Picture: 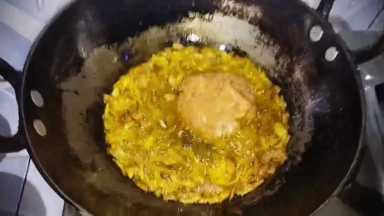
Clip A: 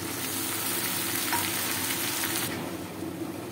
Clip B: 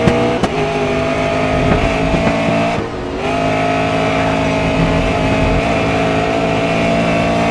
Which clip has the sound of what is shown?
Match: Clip A